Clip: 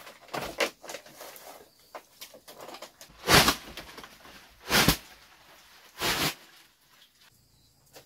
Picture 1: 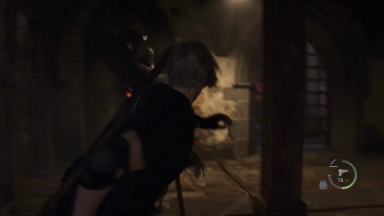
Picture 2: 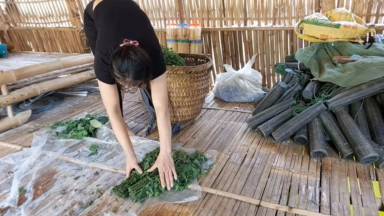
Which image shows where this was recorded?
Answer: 2